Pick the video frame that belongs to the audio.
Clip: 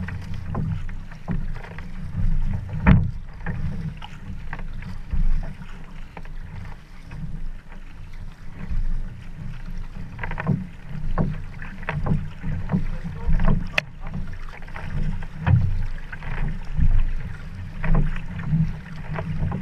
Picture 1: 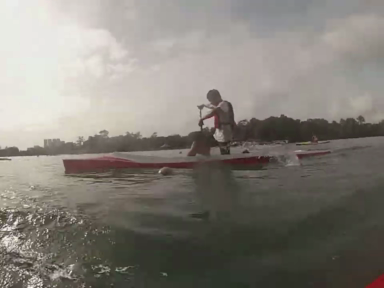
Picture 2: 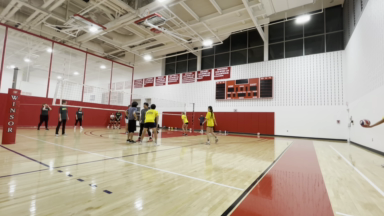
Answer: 1